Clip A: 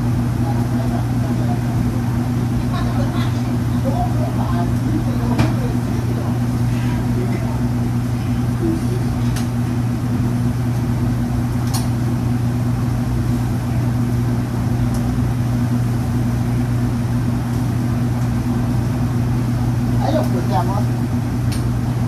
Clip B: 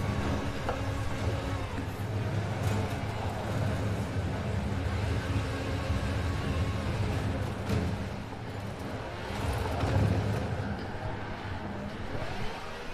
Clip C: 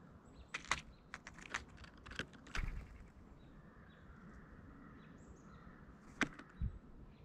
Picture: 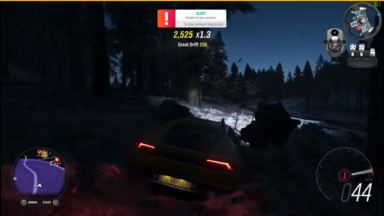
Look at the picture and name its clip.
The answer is B